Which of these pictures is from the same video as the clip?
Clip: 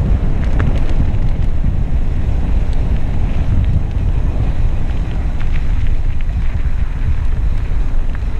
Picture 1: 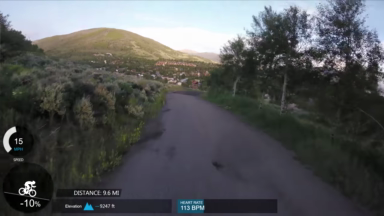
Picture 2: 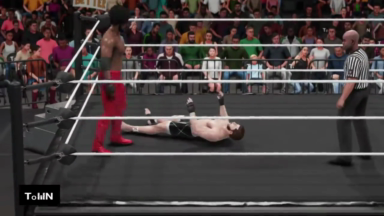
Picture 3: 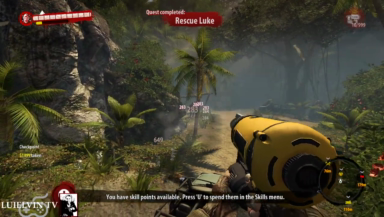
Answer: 1